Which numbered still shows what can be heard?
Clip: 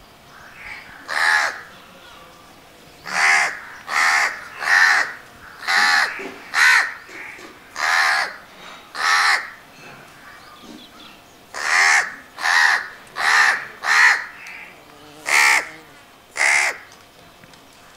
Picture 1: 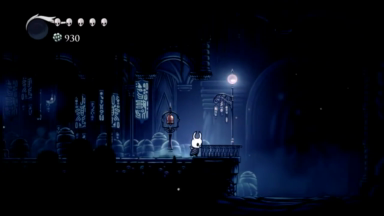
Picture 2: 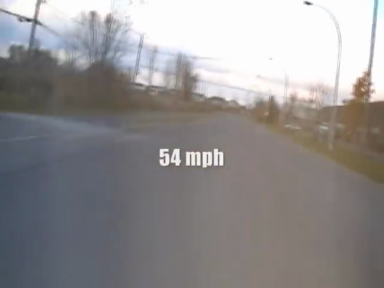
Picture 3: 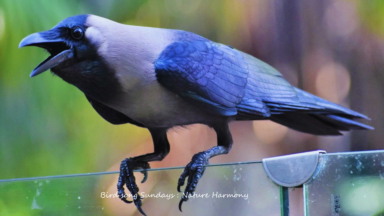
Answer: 3